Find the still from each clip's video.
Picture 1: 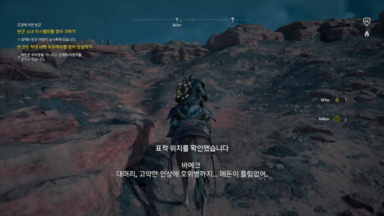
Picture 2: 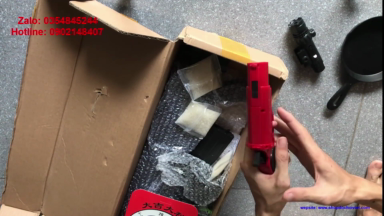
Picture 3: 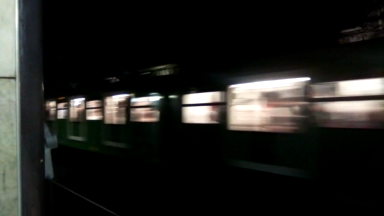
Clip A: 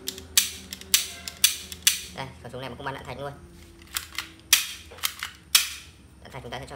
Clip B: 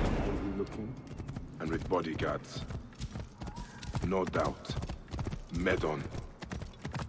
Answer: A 2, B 1